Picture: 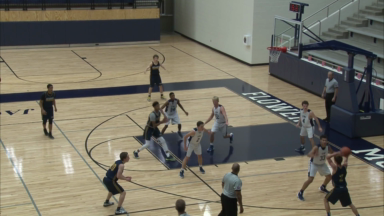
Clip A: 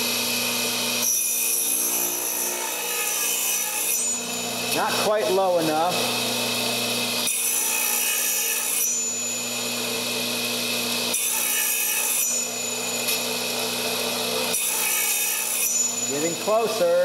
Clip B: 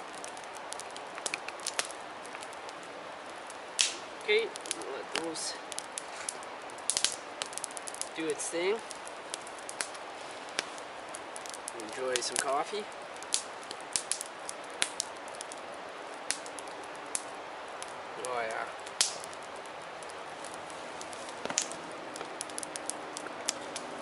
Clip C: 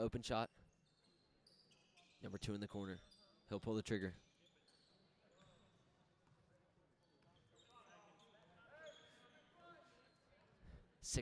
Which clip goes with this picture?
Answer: C